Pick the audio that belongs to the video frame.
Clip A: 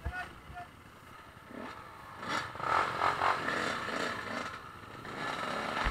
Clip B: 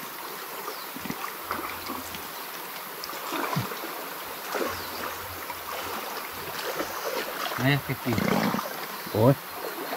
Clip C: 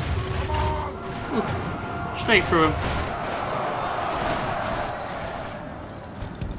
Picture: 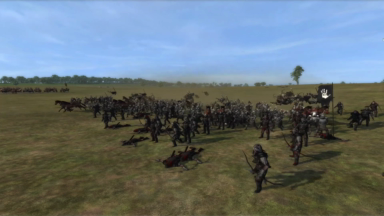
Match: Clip C